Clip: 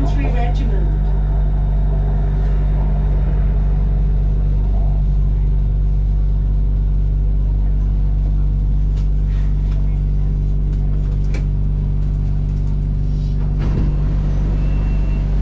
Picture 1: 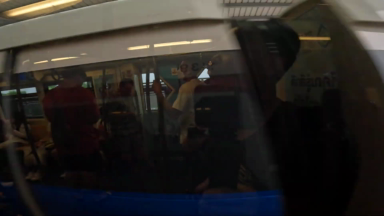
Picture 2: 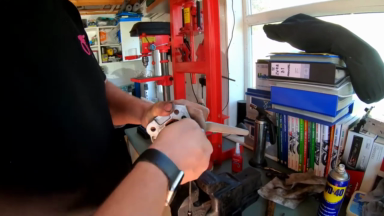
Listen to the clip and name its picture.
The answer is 1